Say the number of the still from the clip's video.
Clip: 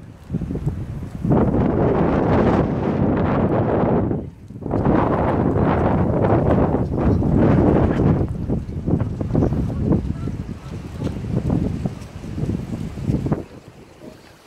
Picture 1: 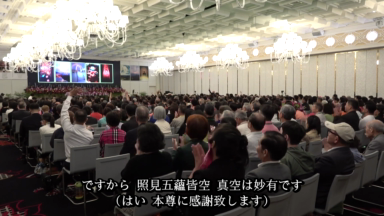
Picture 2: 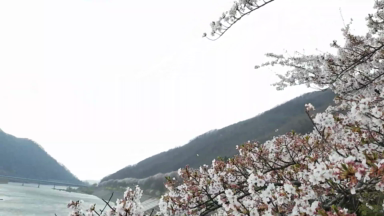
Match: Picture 2